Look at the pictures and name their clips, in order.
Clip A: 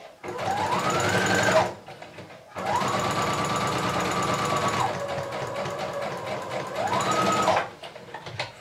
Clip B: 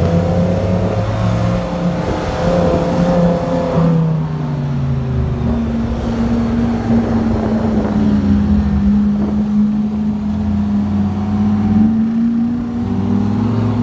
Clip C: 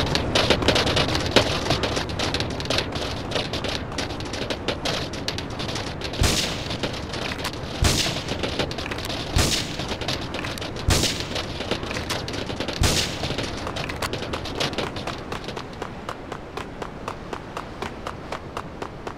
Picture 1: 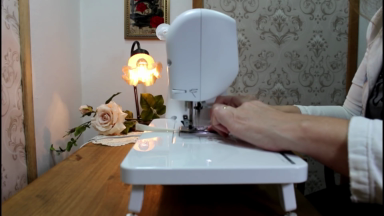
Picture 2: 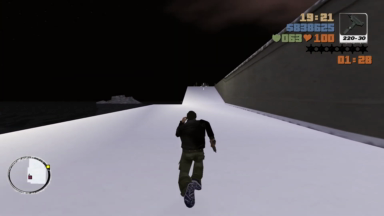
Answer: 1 A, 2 C